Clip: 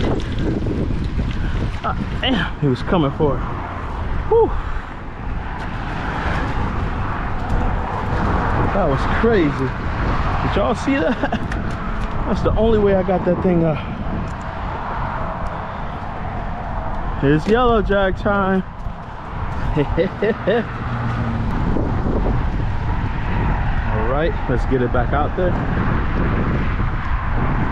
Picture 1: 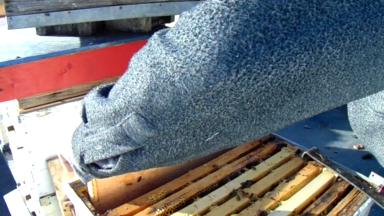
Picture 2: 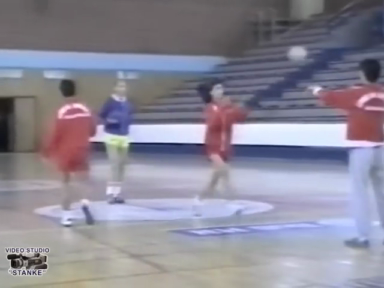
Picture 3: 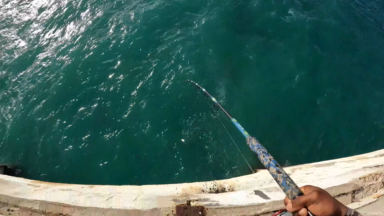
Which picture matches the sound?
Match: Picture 3